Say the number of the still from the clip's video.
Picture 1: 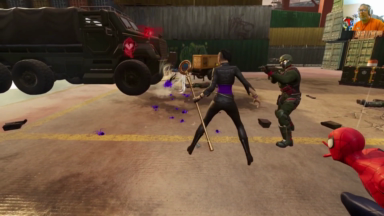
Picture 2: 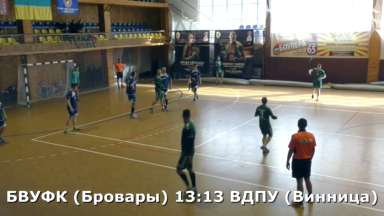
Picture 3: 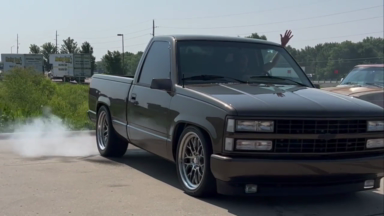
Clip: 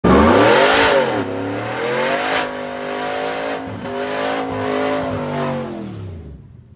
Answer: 3